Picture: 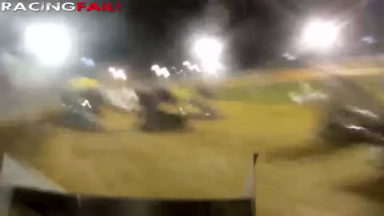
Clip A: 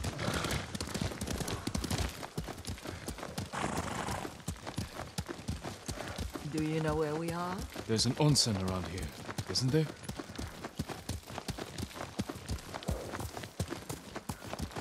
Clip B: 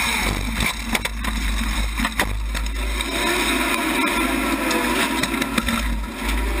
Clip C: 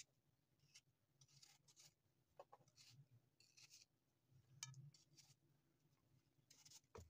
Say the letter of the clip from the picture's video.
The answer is B